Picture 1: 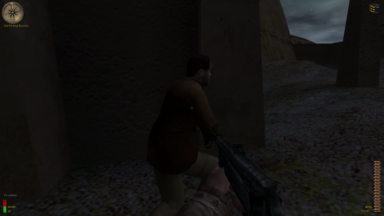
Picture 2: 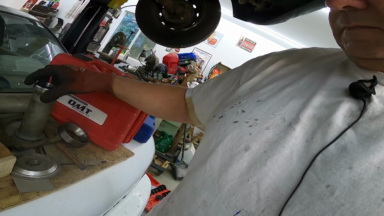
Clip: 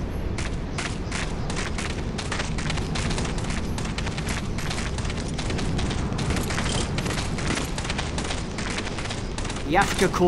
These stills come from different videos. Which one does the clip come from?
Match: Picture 1